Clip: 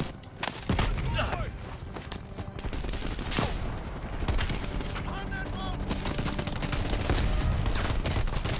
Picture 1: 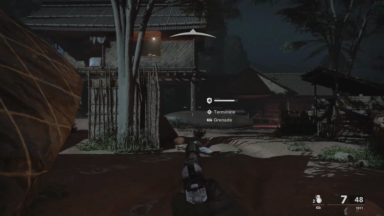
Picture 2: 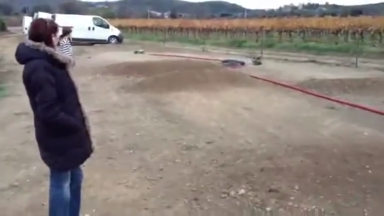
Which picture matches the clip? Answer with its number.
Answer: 1